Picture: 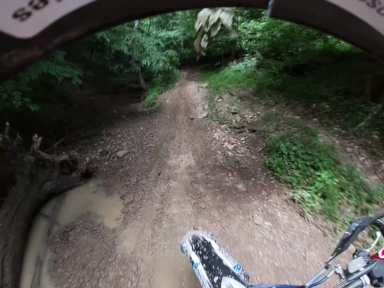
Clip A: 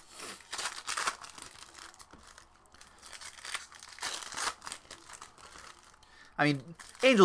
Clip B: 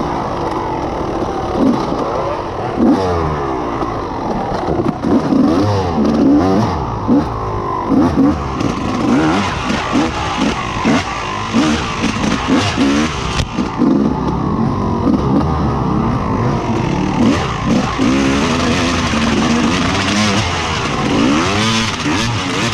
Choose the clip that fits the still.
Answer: B